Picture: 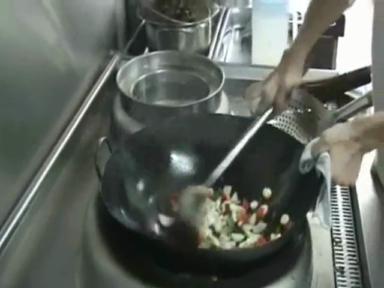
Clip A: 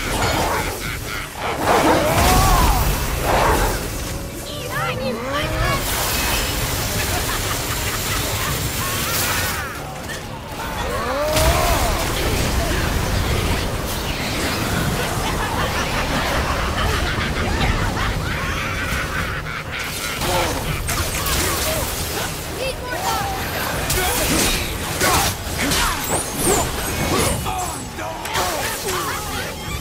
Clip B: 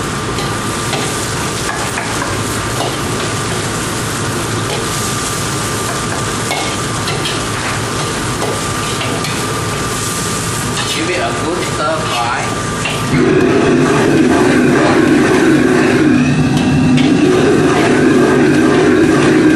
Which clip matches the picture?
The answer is B